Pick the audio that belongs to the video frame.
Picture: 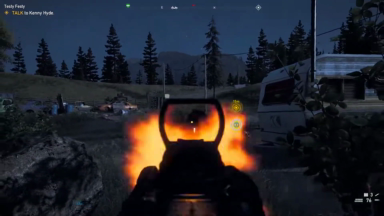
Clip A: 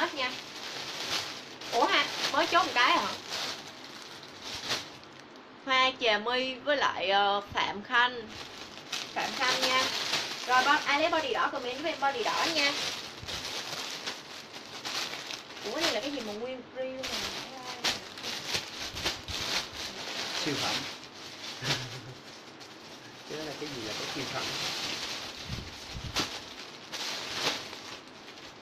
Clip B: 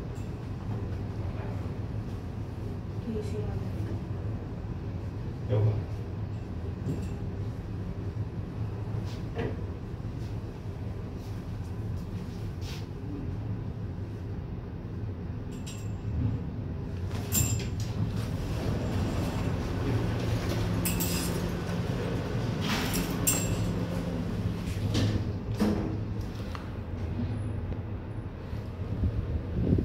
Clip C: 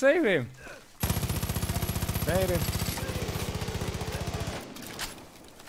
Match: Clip C